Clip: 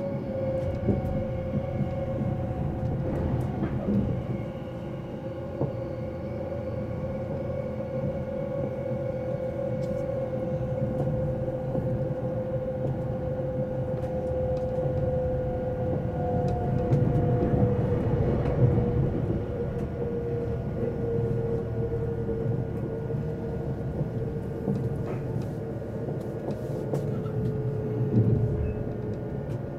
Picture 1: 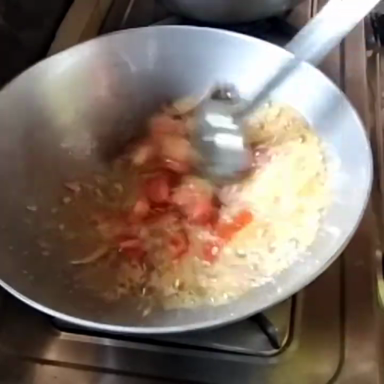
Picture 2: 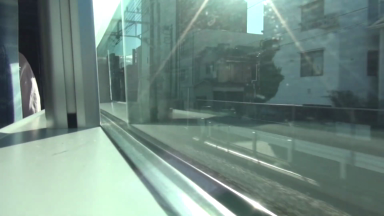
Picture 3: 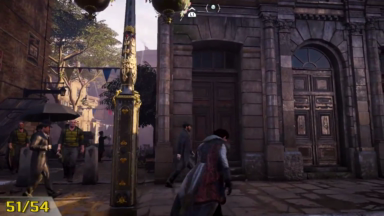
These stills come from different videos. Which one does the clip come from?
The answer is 2